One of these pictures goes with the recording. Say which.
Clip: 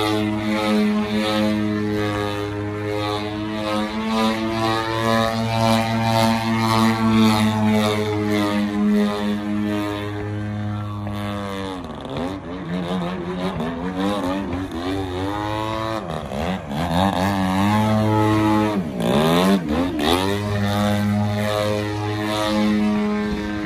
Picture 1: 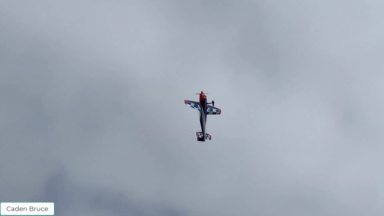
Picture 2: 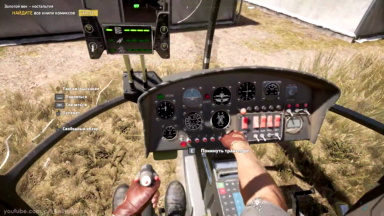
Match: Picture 1